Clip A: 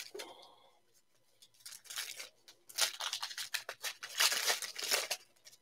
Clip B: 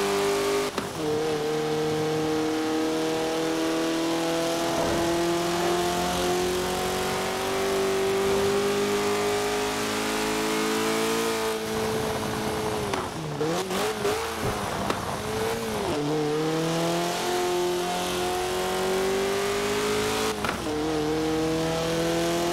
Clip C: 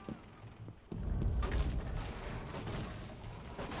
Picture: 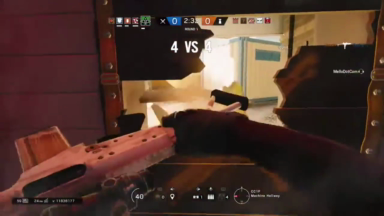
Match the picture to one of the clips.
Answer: C